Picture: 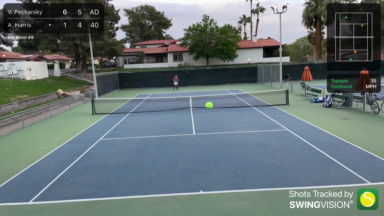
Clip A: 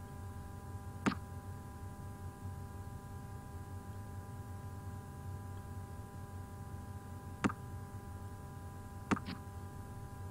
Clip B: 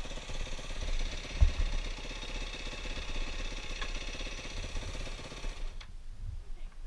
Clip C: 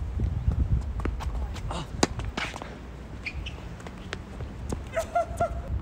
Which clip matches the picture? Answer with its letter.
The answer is C